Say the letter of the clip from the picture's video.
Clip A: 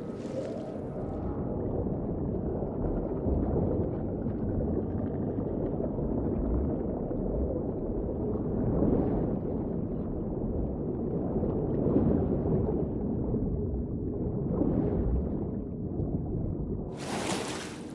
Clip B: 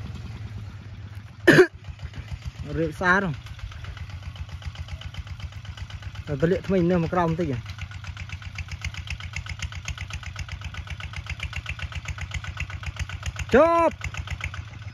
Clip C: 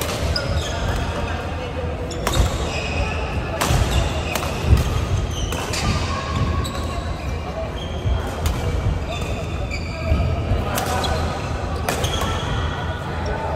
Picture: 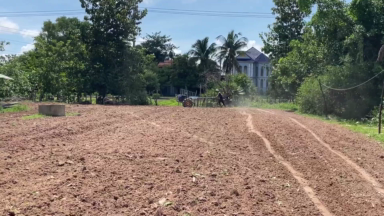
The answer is B